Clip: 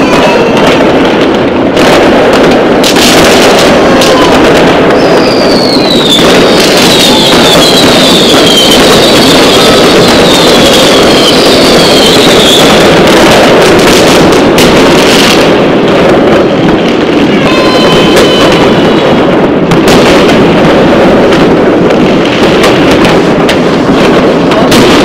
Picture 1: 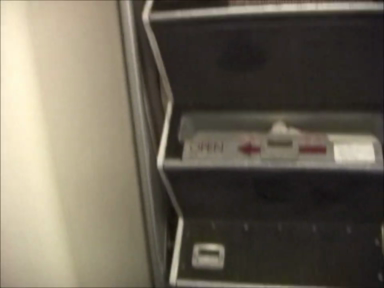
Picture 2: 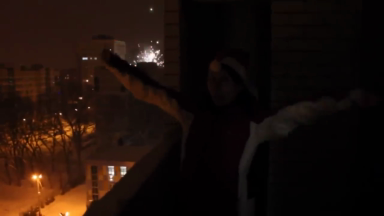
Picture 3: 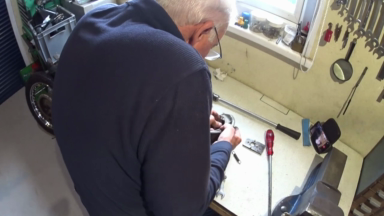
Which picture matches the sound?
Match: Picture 2